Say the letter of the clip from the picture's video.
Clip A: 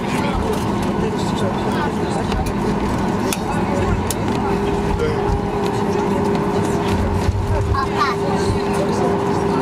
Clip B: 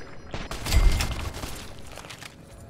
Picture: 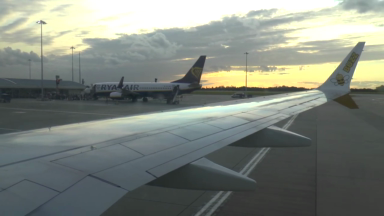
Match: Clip A